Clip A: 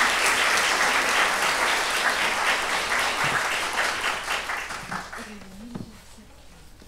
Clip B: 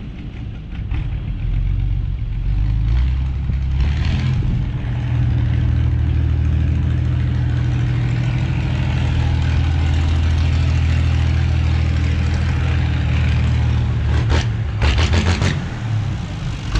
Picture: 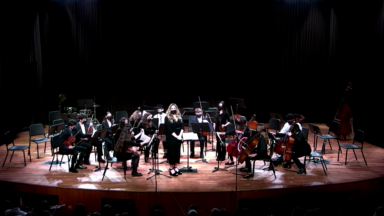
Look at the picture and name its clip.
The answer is A